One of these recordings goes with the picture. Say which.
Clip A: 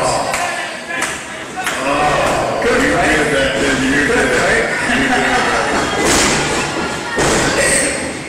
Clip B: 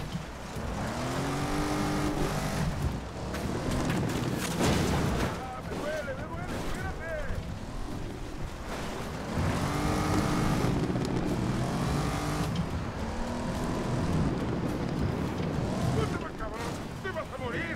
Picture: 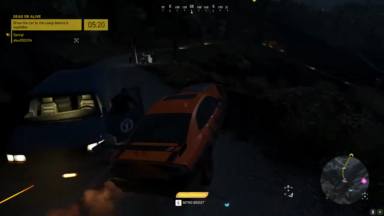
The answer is B